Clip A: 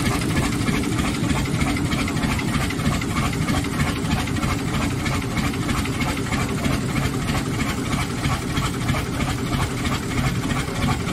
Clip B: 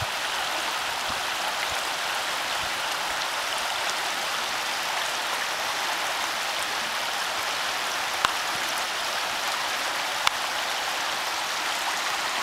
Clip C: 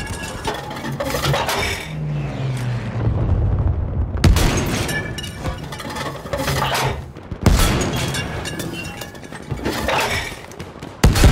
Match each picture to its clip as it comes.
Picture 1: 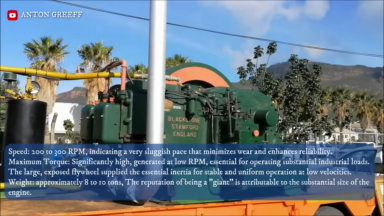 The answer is A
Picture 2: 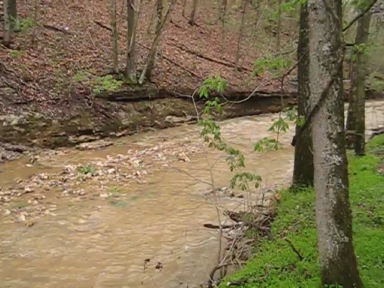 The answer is B